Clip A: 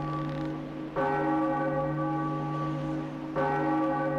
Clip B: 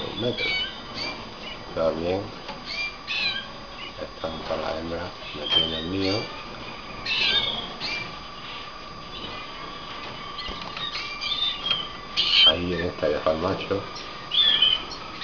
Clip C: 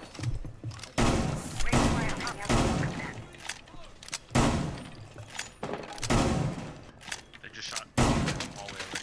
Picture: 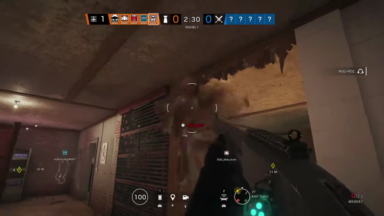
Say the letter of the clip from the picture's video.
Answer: C